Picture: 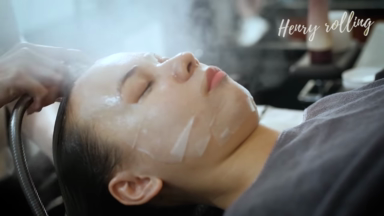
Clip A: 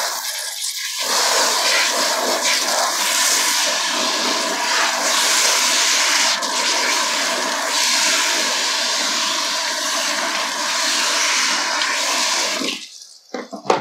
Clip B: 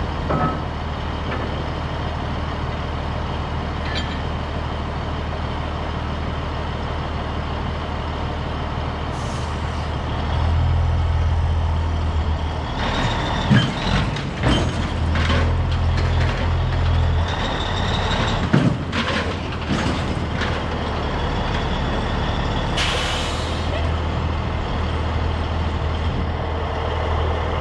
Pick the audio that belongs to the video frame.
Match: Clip A